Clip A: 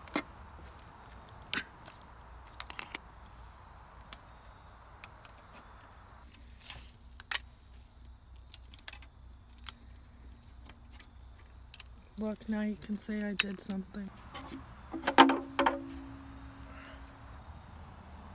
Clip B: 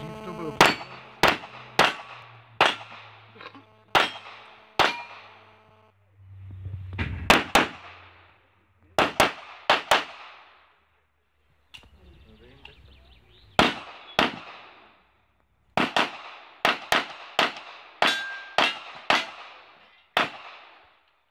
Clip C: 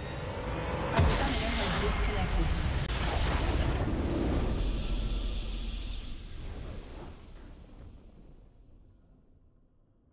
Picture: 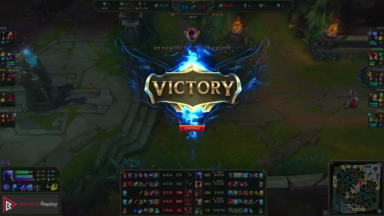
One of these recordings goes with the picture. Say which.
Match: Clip C